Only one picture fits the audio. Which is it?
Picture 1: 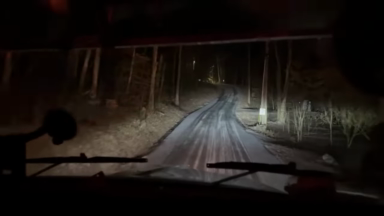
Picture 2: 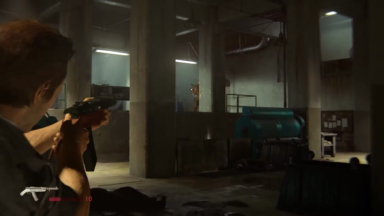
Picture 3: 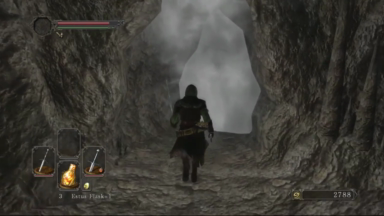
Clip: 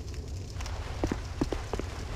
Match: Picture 3